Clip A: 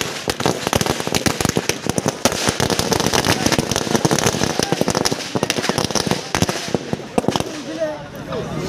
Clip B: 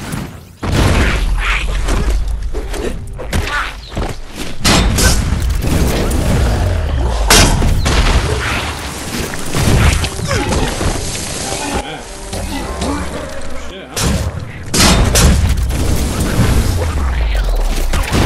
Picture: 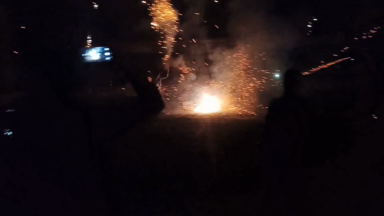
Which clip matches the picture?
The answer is A